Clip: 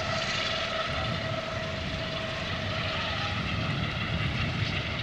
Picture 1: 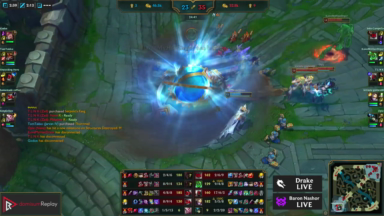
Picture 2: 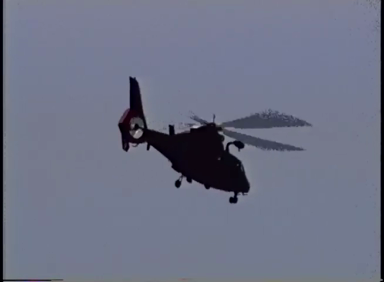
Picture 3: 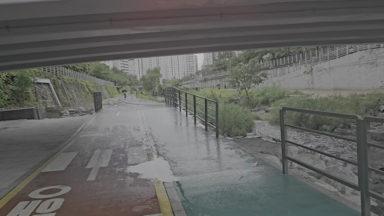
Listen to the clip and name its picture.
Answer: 2